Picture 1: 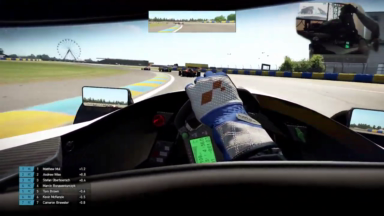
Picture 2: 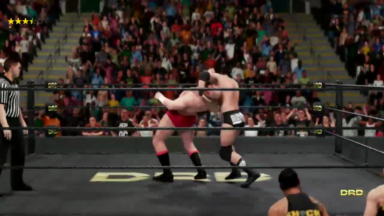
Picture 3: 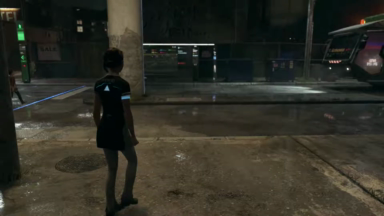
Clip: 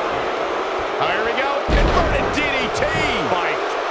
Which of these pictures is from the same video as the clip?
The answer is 2